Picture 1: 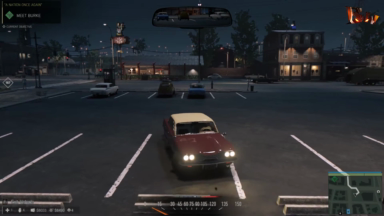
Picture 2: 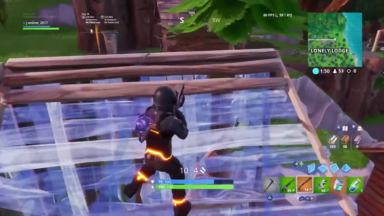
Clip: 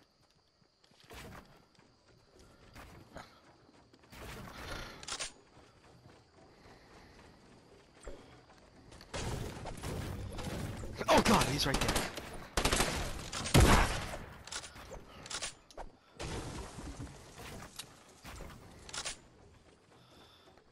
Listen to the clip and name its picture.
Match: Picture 2